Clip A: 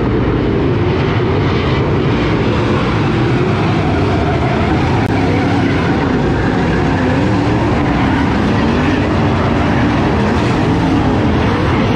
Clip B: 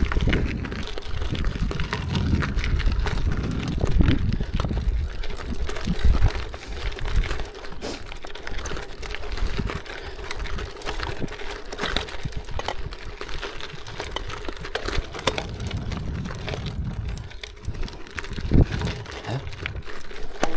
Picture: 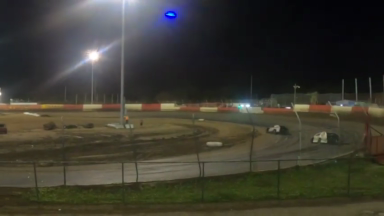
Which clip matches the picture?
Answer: A